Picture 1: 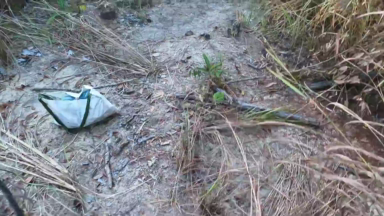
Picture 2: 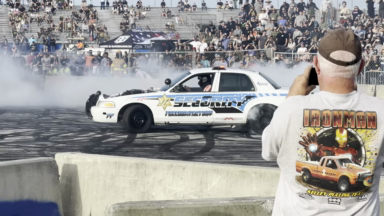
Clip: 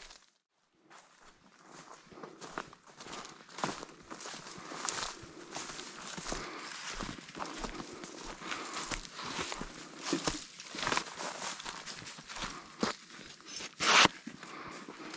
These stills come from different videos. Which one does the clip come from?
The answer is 1